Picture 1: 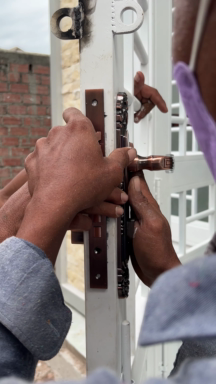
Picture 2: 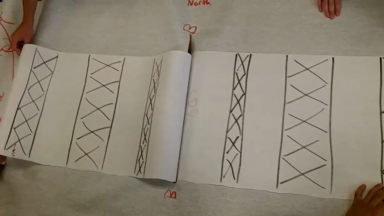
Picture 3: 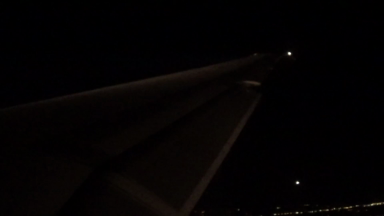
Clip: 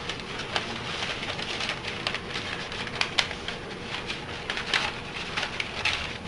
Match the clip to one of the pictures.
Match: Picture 2